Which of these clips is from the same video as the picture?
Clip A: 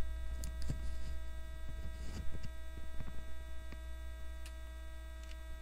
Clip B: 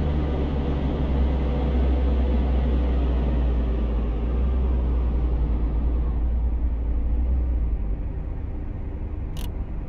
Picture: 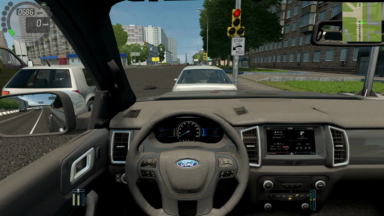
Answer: B